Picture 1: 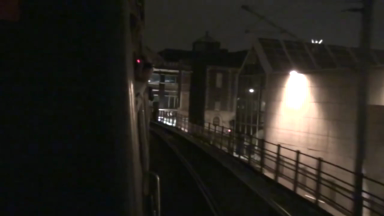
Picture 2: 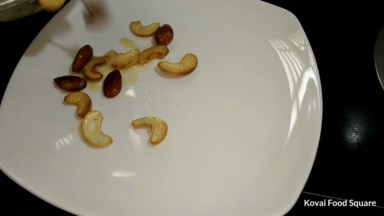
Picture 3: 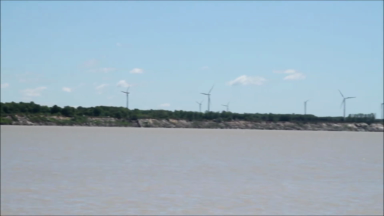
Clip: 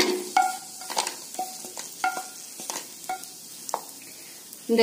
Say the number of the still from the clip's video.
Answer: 2